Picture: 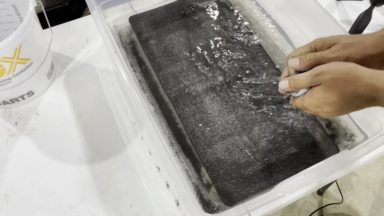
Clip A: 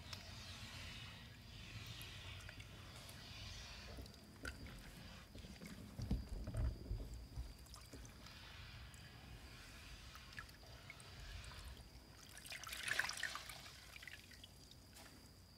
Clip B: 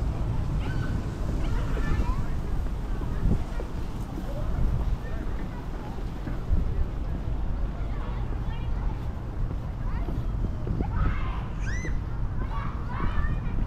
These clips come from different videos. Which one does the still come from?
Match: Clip A